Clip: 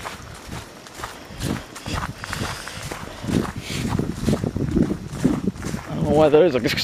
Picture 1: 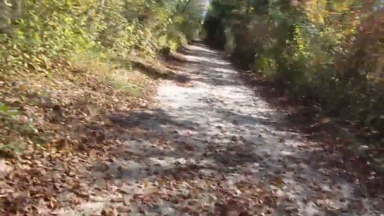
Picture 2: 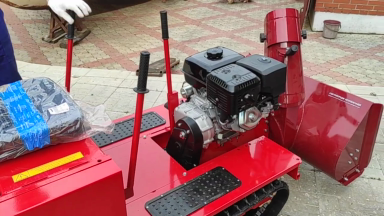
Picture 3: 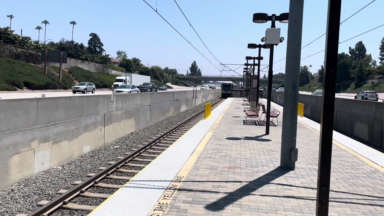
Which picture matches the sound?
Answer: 1